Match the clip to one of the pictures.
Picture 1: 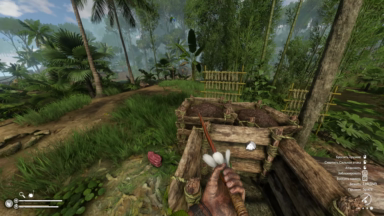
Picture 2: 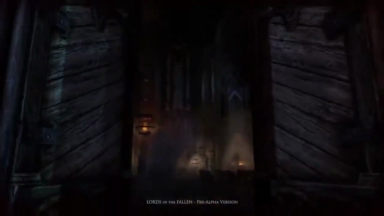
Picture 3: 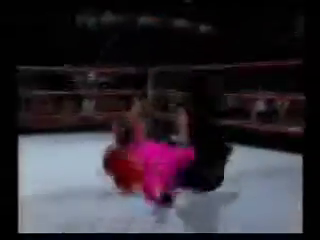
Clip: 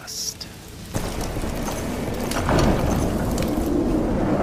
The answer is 2